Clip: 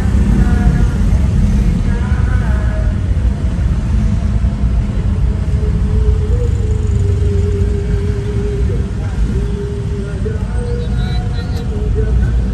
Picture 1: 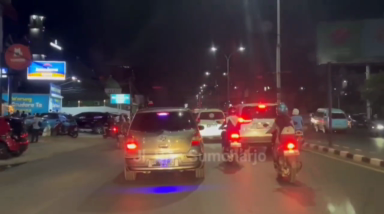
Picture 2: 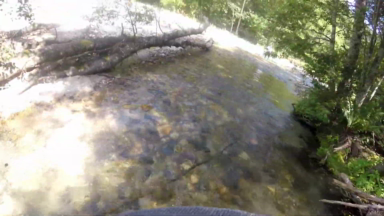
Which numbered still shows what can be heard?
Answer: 1